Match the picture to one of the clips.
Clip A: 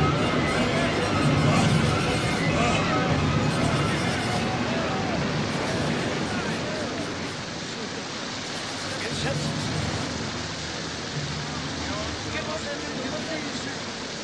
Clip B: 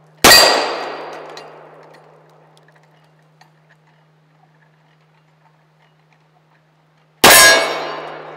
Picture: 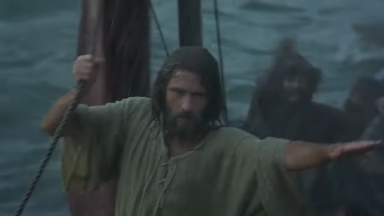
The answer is A